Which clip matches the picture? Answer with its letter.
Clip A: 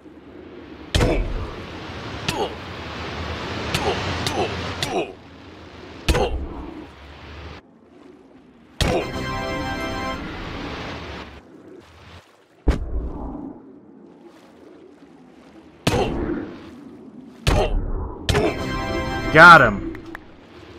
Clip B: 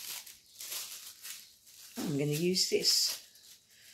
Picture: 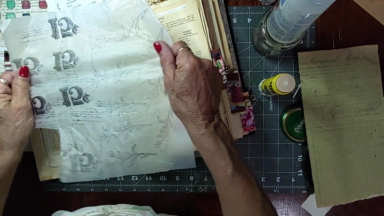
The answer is B